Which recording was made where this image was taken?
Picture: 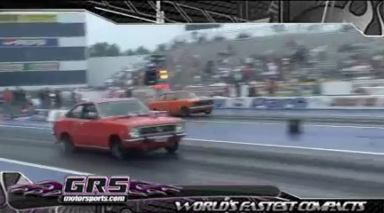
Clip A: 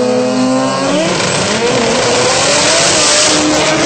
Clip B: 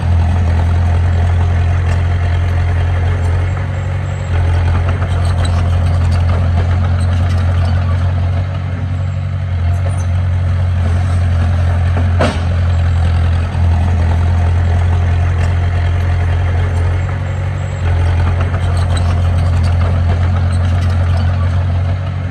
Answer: A